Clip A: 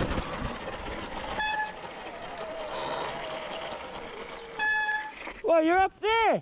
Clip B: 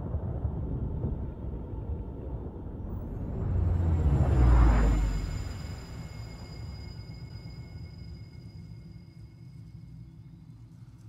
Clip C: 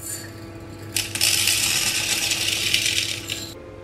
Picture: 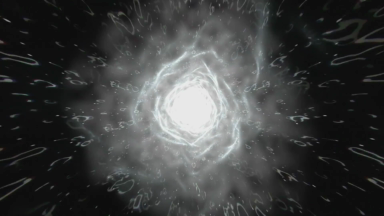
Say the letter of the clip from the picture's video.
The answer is B